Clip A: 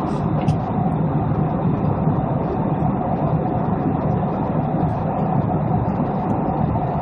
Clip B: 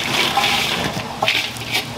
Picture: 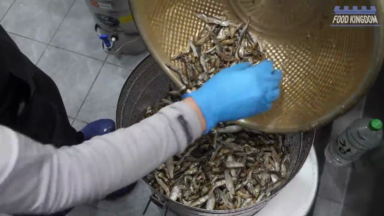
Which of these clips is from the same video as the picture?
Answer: B